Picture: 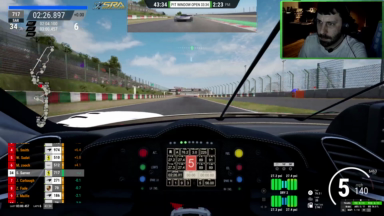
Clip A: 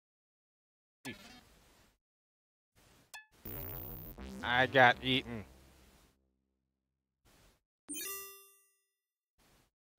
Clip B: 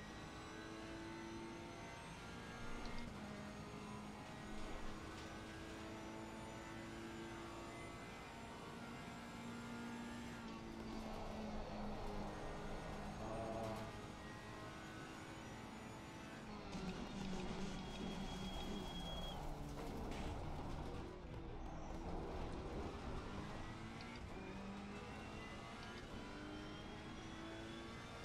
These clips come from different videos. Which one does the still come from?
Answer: B